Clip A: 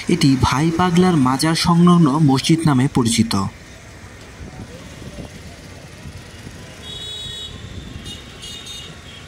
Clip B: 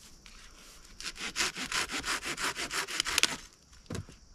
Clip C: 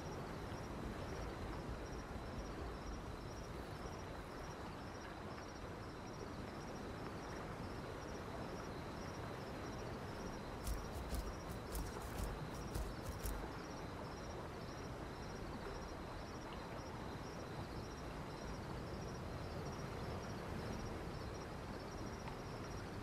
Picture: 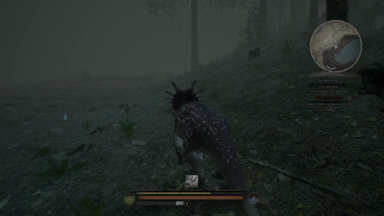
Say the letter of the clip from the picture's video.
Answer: C